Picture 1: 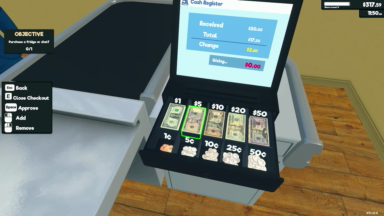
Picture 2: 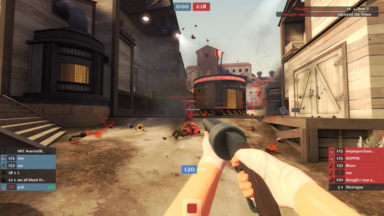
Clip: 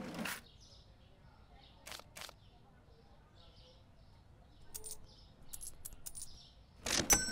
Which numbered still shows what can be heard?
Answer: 1